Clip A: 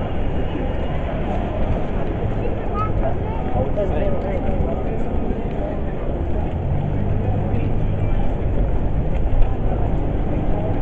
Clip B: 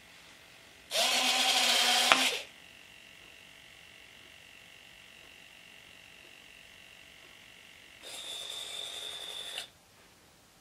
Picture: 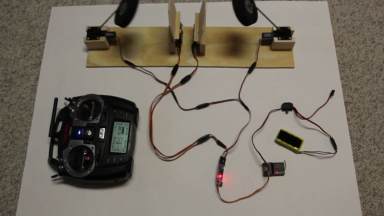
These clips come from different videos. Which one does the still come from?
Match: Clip B